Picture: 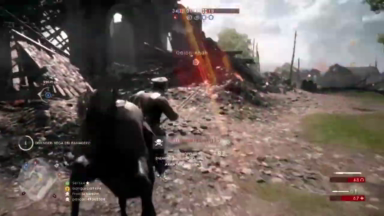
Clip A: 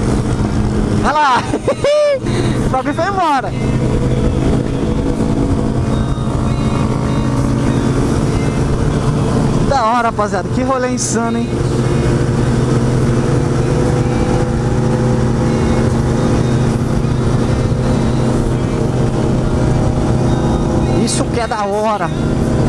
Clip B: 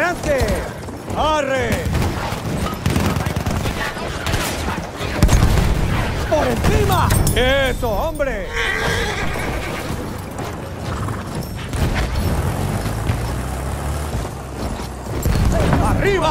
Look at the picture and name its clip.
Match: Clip B